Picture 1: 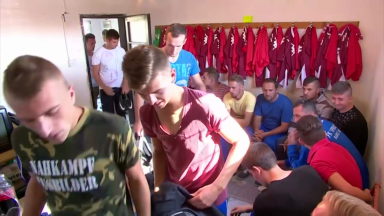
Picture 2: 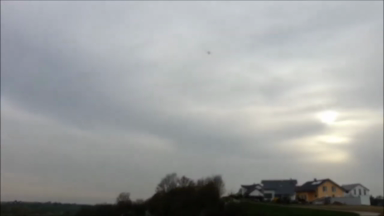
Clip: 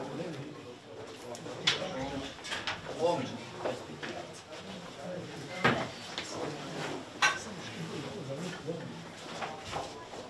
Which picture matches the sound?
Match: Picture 1